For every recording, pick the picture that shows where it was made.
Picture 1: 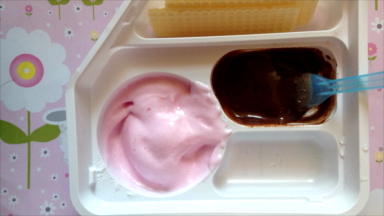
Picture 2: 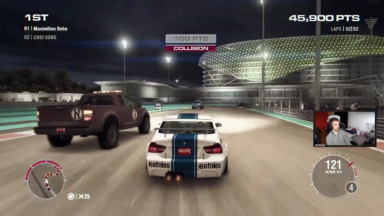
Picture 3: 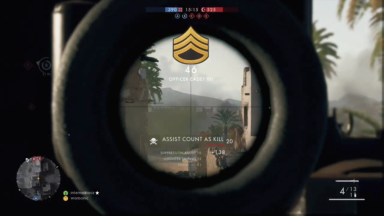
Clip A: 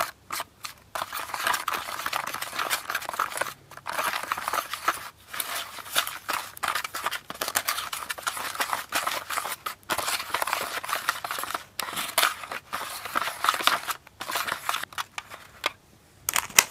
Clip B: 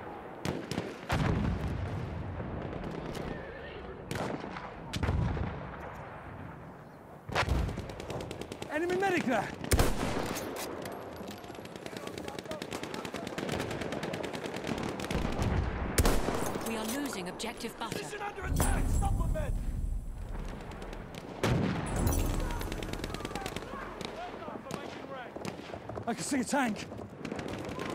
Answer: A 1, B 3